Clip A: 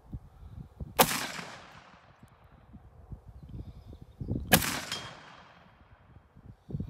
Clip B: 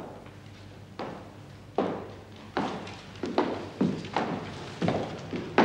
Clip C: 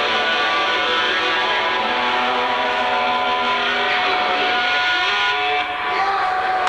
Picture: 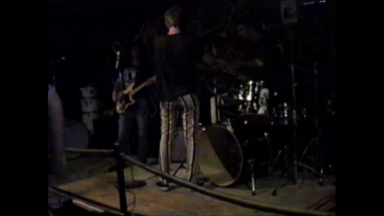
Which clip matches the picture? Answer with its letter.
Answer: C